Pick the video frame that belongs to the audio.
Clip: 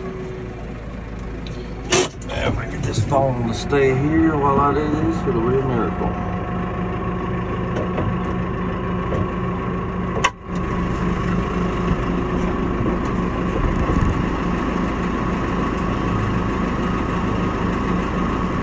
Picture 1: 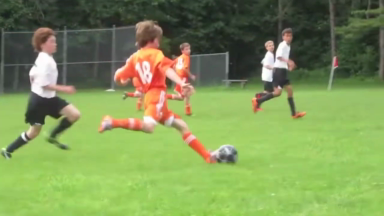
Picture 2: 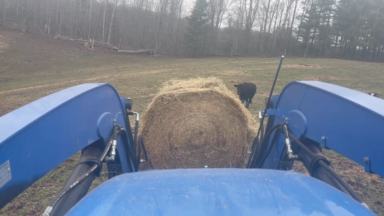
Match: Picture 2